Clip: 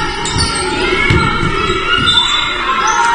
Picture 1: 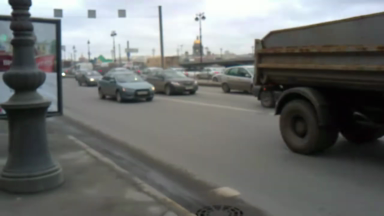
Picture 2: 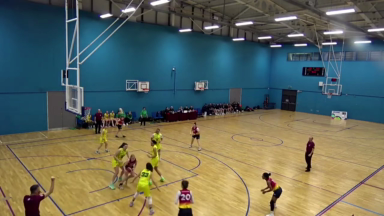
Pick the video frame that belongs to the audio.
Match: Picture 2